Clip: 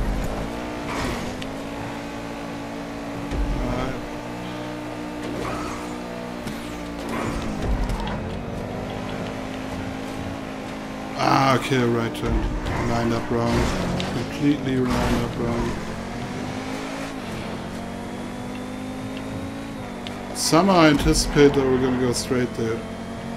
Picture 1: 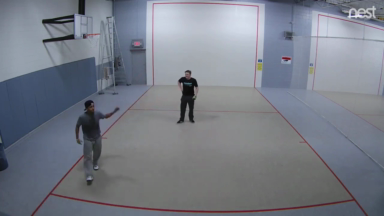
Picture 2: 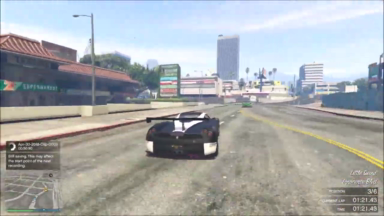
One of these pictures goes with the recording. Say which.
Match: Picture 2